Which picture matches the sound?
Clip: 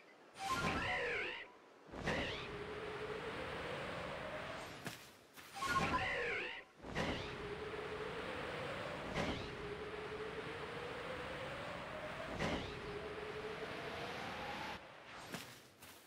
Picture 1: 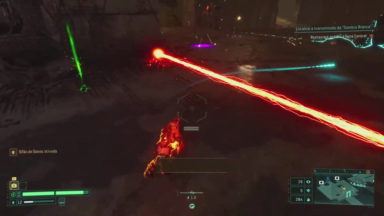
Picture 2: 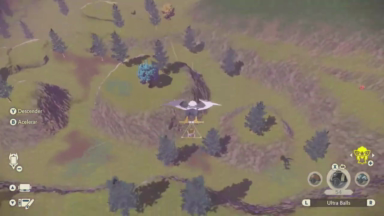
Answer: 2